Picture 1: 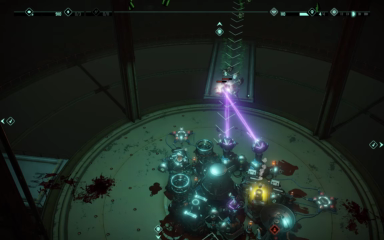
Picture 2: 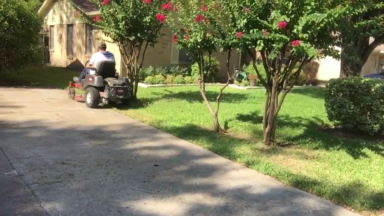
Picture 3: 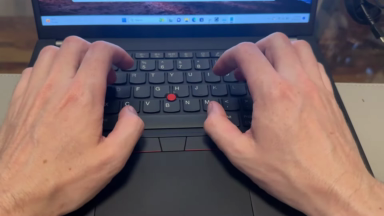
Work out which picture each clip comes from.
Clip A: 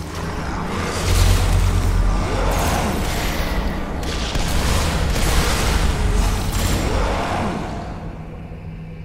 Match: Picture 1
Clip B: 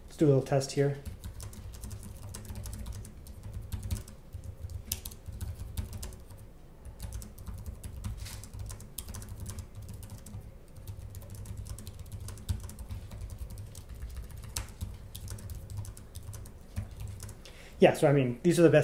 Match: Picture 3